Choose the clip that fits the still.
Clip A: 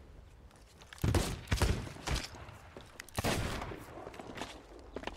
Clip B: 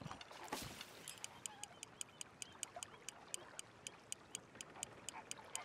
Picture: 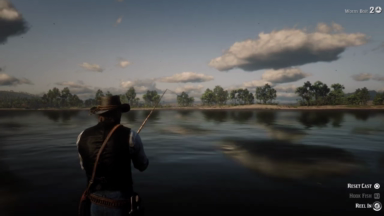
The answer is B